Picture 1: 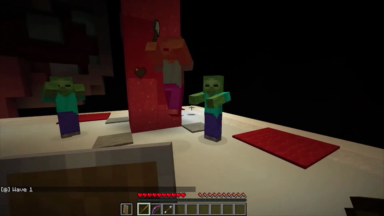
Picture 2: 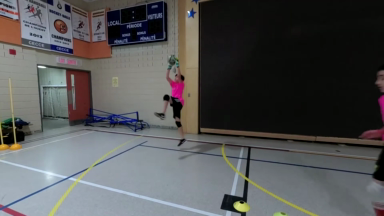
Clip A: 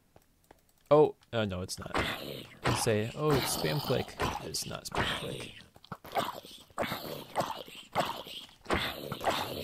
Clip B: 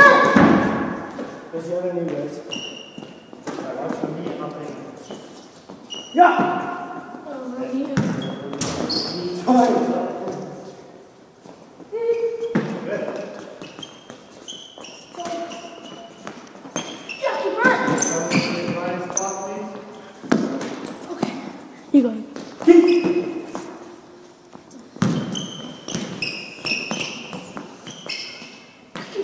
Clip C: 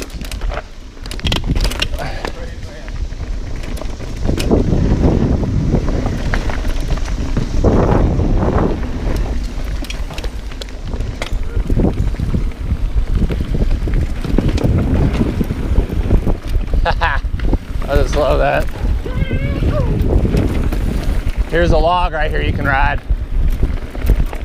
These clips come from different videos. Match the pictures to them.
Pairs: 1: A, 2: B